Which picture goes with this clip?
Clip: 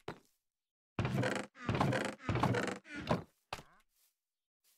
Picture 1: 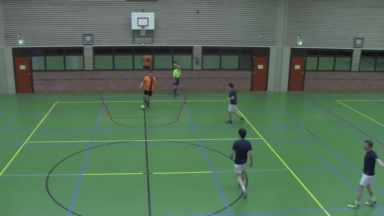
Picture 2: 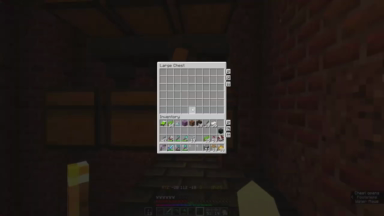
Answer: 2